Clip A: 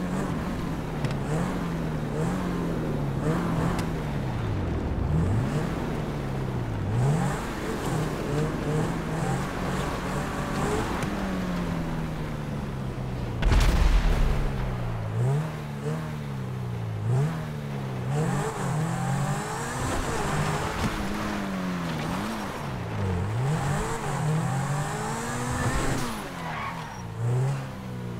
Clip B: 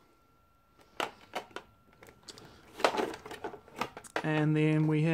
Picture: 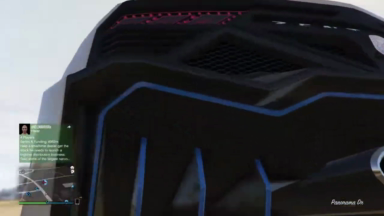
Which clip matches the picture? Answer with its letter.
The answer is A